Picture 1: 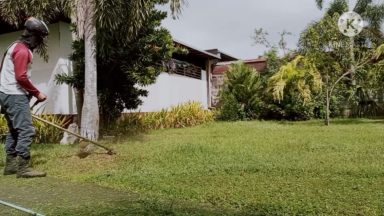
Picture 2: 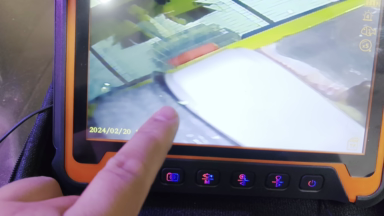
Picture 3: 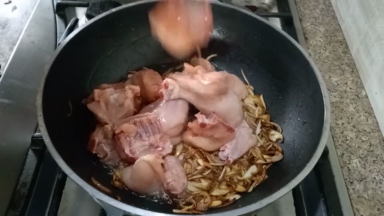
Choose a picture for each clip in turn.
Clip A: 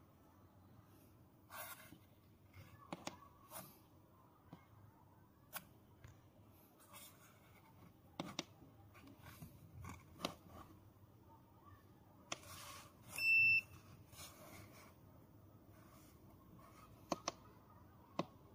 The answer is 2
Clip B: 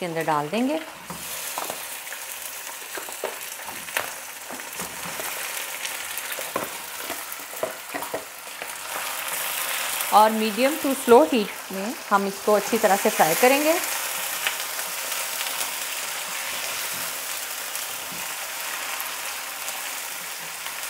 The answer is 3